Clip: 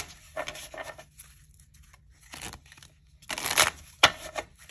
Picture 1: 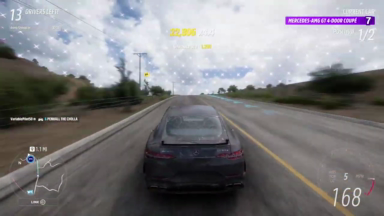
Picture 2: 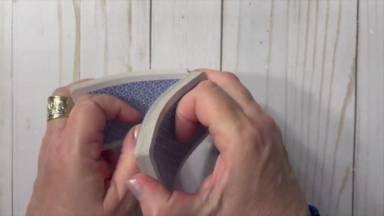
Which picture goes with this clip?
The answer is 2